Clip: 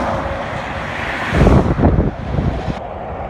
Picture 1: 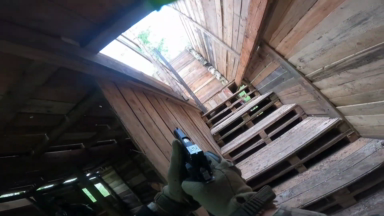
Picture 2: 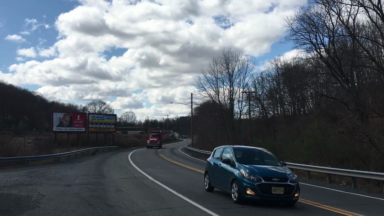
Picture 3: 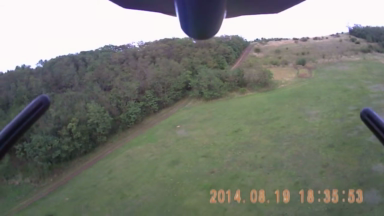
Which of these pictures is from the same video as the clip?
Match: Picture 2